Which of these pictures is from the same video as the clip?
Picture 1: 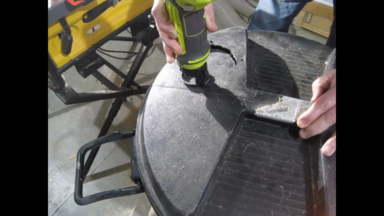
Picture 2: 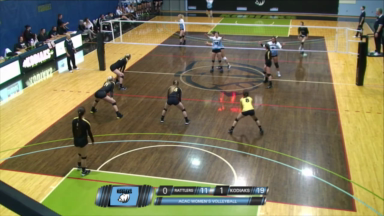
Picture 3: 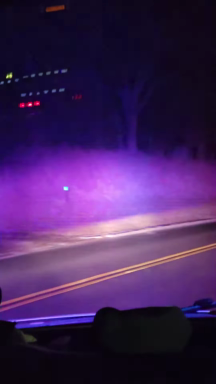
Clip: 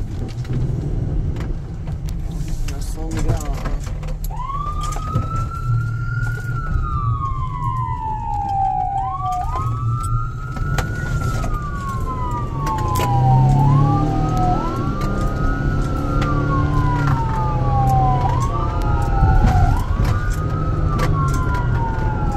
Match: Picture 3